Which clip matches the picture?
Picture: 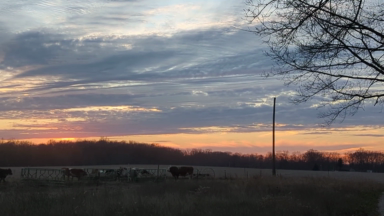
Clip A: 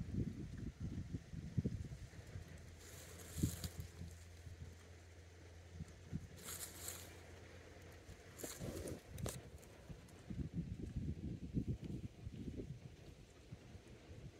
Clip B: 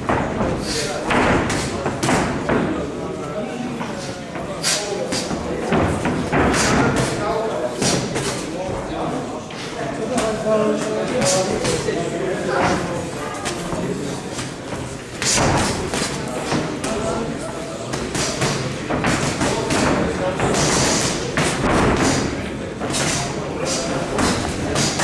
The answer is A